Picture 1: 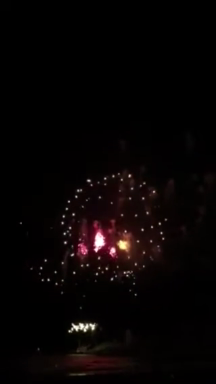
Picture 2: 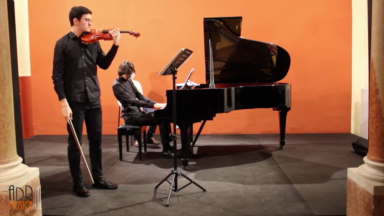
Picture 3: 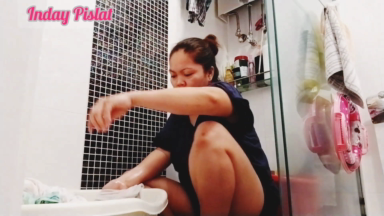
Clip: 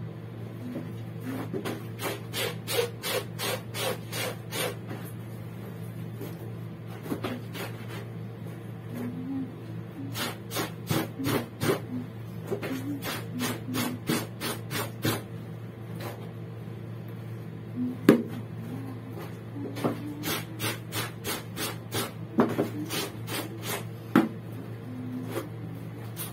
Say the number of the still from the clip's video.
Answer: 3